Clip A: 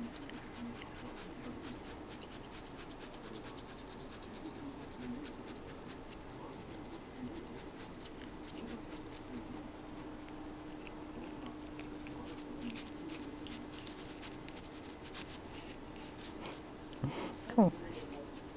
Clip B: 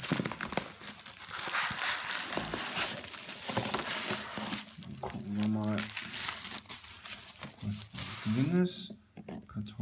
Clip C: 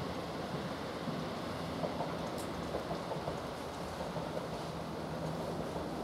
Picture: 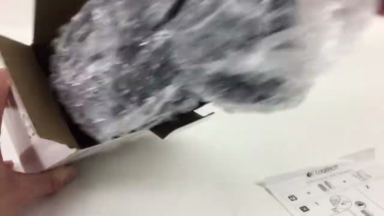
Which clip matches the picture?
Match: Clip B